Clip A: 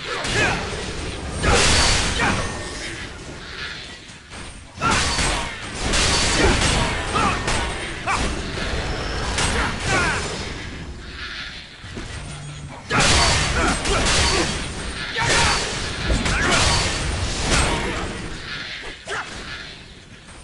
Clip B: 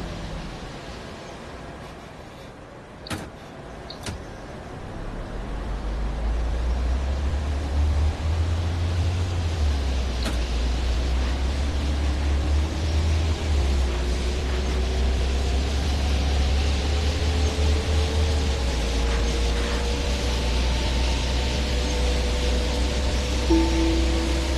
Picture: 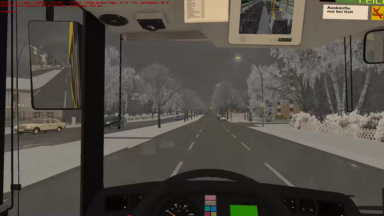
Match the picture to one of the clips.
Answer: B